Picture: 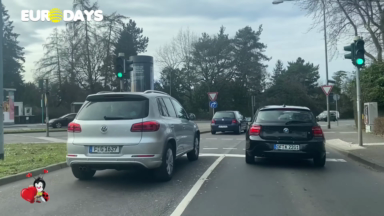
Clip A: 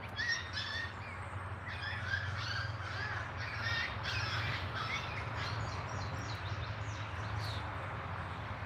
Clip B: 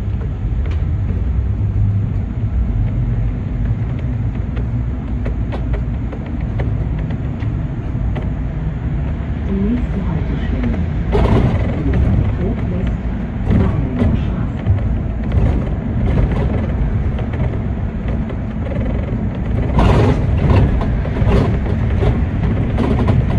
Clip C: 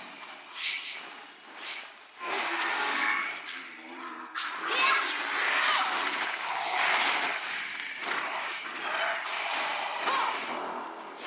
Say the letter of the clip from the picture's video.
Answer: B